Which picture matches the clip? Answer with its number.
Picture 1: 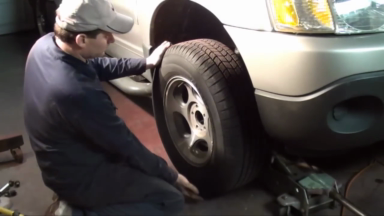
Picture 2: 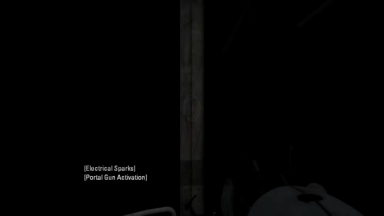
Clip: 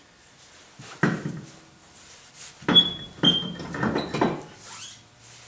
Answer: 1